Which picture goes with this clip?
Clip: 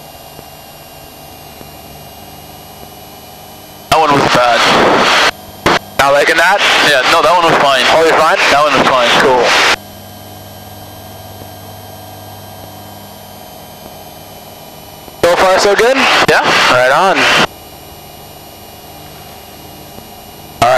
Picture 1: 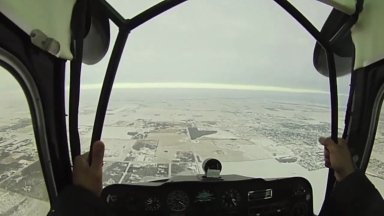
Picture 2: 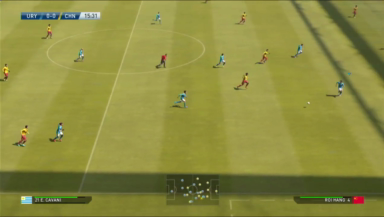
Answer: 1